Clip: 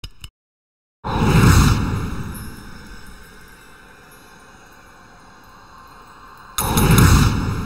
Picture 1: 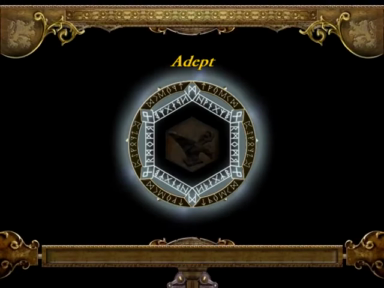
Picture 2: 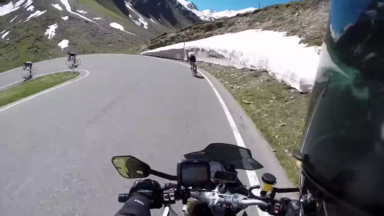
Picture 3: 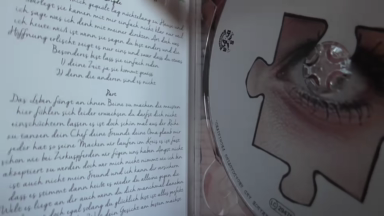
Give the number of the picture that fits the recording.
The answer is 1